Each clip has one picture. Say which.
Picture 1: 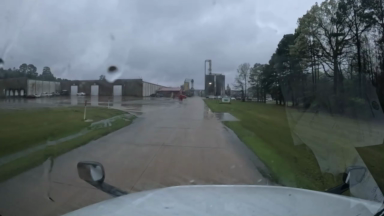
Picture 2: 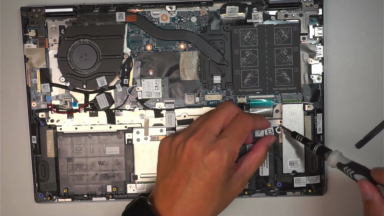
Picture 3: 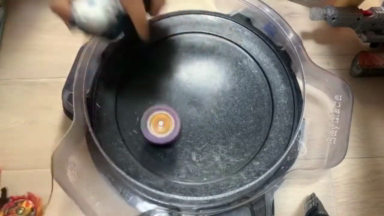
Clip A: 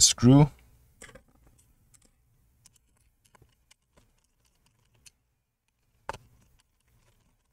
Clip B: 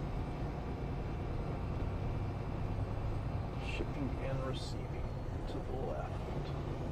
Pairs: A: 2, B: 1